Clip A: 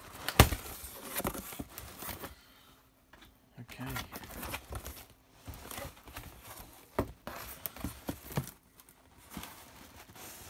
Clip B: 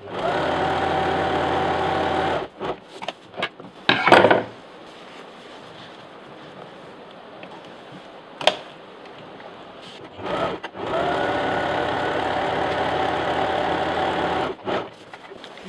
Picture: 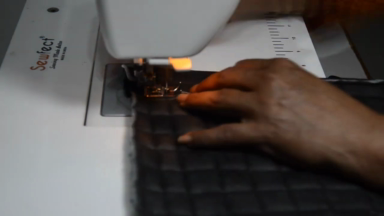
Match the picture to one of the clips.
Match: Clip B